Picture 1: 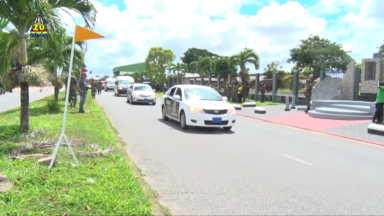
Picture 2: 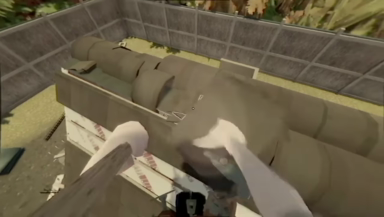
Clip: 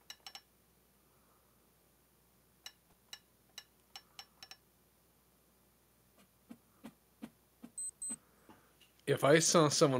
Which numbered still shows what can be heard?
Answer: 2